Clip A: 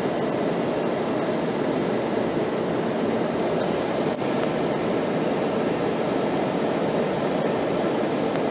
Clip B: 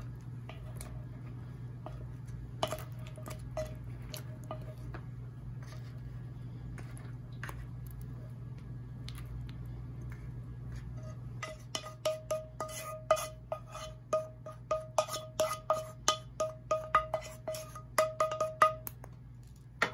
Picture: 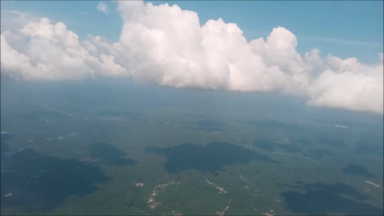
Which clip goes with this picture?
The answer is A